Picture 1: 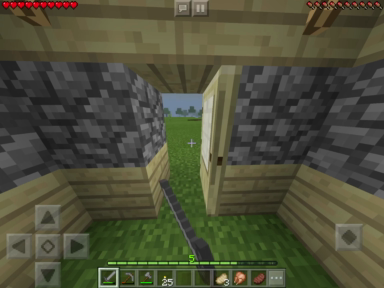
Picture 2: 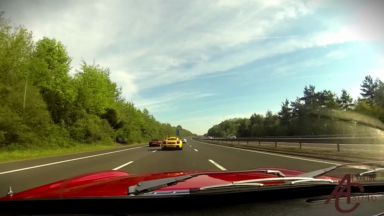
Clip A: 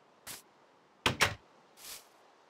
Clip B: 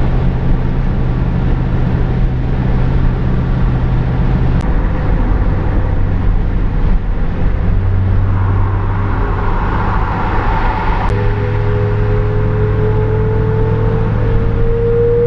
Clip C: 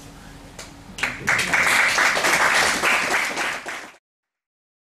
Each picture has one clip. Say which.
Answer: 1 A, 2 B